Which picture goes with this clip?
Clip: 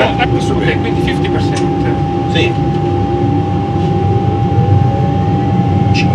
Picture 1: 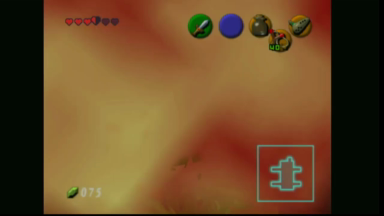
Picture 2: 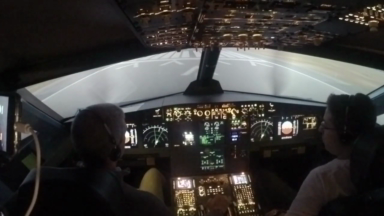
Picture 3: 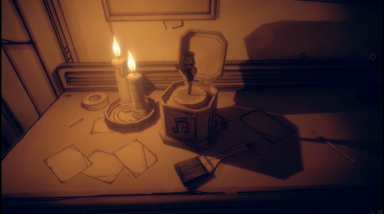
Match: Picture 2